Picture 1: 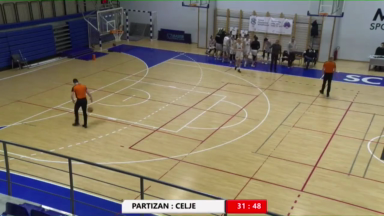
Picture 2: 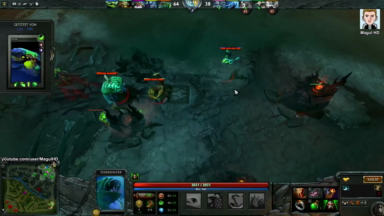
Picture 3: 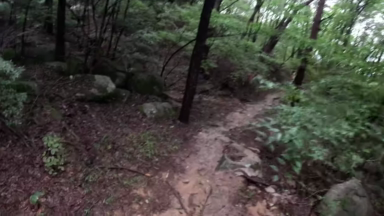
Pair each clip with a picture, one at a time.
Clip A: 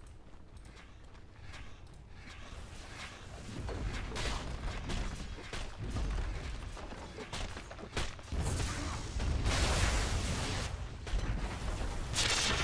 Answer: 2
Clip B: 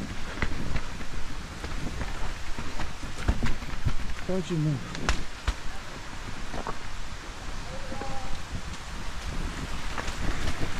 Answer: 3